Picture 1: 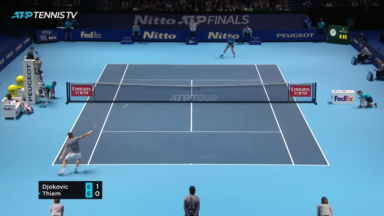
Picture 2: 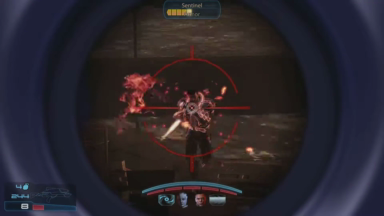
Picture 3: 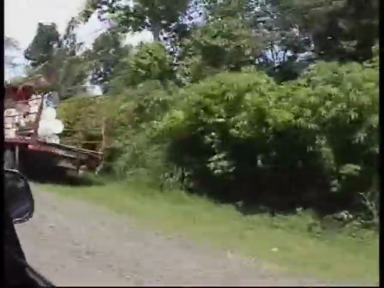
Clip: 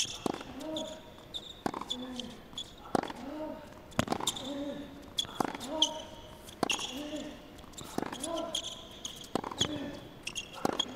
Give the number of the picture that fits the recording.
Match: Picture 1